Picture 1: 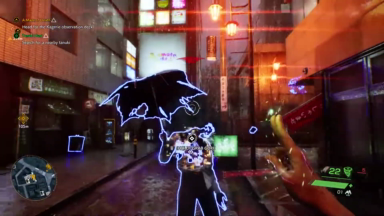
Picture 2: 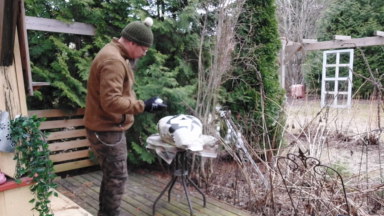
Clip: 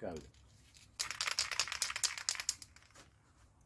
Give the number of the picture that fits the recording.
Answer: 2